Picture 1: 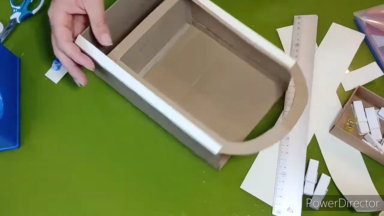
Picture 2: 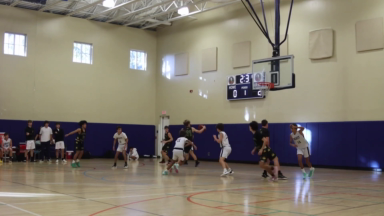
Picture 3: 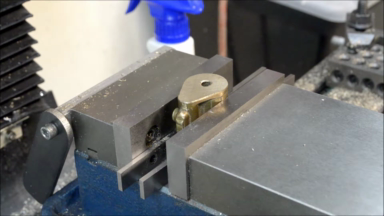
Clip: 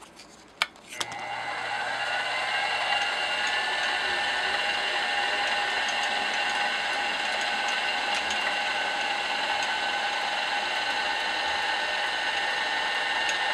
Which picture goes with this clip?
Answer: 3